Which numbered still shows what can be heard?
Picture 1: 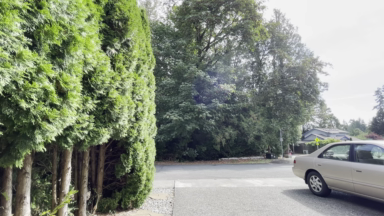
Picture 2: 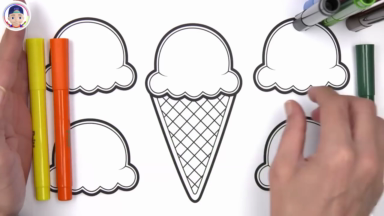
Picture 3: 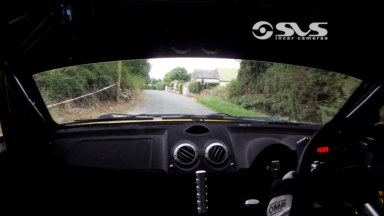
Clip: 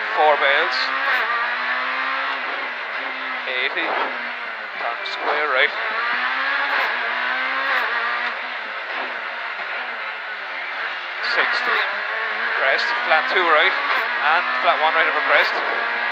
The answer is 3